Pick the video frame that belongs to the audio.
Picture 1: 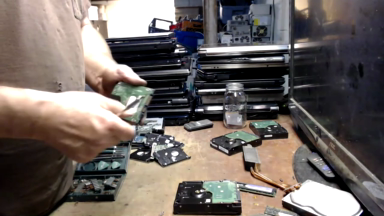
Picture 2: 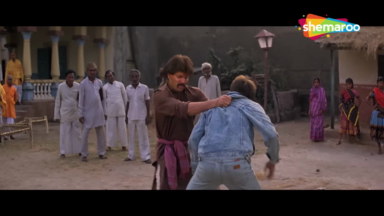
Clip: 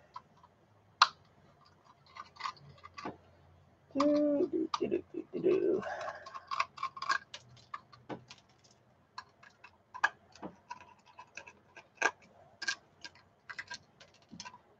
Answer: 1